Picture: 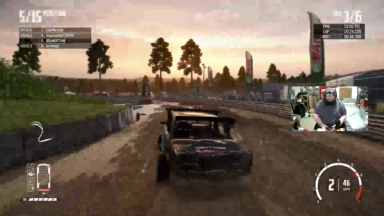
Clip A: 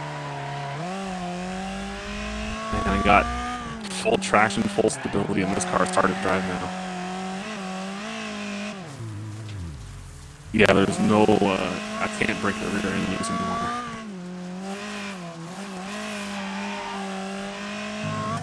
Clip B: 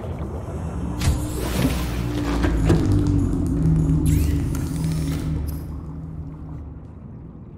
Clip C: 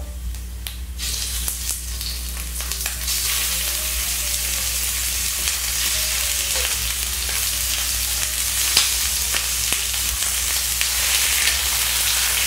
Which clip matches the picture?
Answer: A